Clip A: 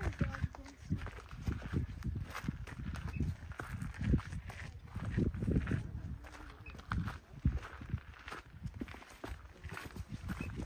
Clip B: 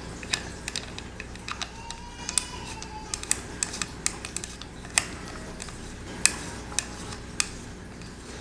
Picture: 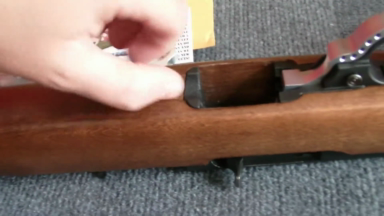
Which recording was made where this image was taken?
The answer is B